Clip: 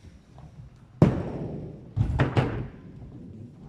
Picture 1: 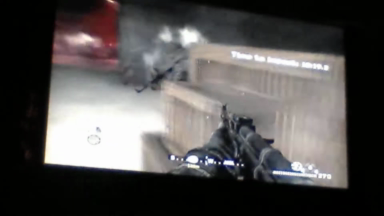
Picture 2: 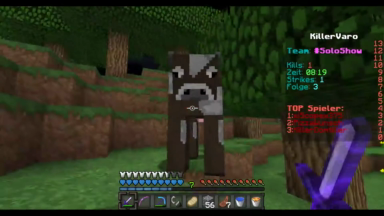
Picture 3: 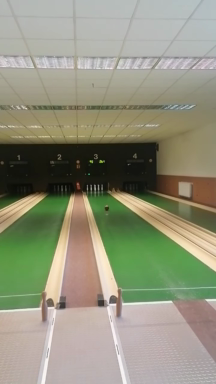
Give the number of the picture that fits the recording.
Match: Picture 3